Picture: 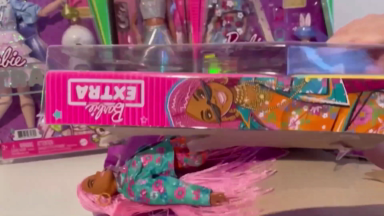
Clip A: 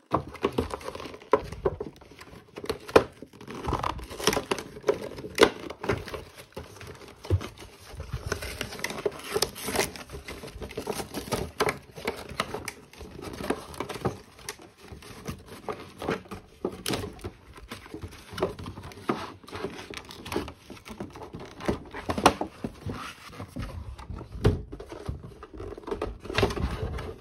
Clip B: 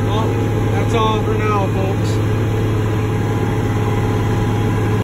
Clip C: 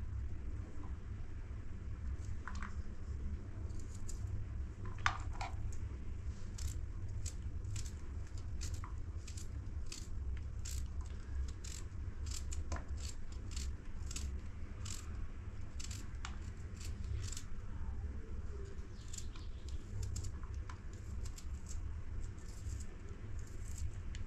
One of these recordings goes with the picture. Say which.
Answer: A